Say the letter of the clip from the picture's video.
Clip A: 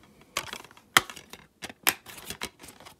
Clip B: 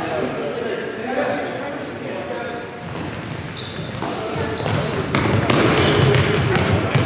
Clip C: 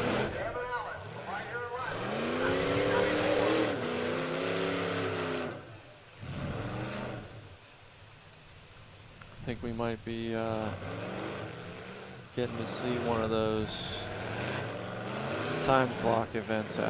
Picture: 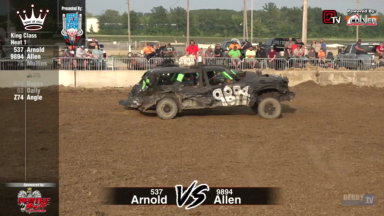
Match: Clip C